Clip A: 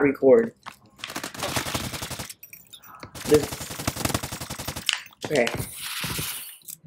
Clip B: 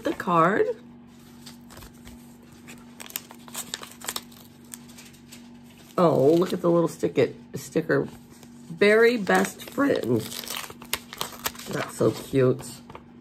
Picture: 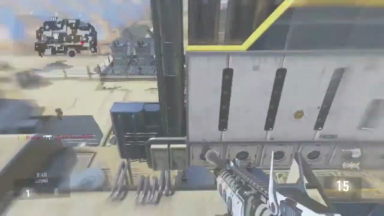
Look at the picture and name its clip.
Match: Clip A